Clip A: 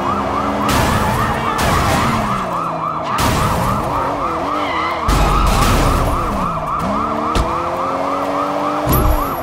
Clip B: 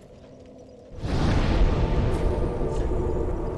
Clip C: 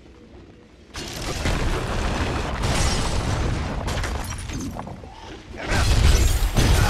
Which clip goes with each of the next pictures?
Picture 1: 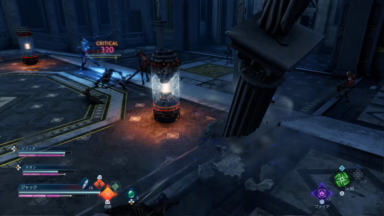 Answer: C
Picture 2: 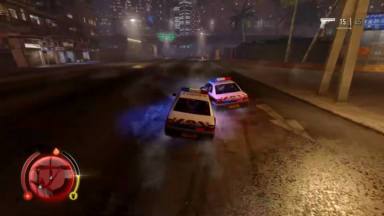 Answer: A